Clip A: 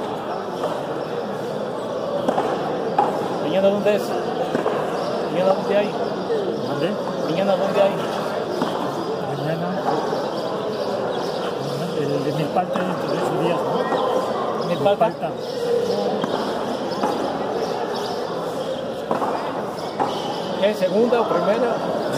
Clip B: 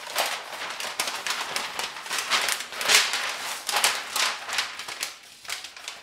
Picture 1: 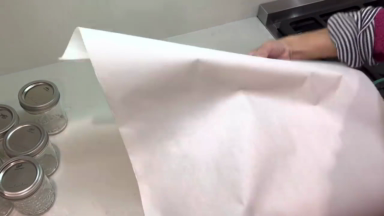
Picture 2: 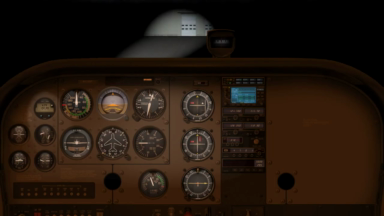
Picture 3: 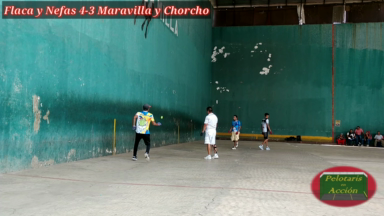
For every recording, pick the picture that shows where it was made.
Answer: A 3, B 1